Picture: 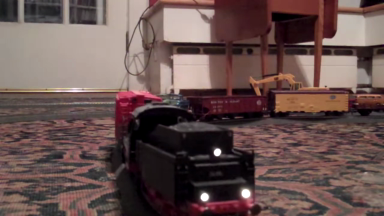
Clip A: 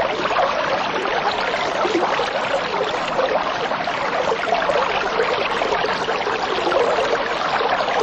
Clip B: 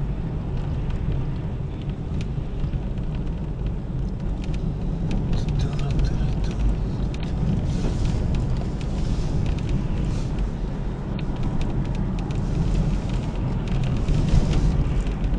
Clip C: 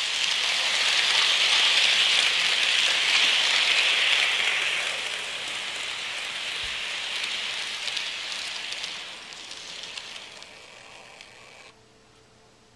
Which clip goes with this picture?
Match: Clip C